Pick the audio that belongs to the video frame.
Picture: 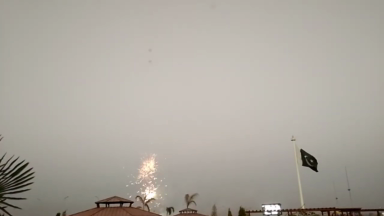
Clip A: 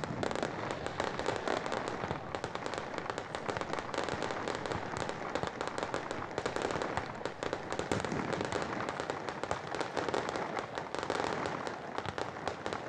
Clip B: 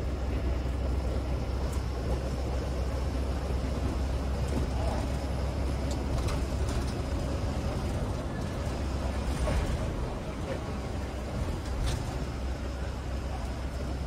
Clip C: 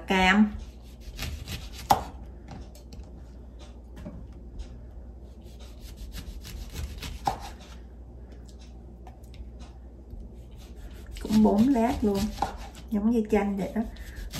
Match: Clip A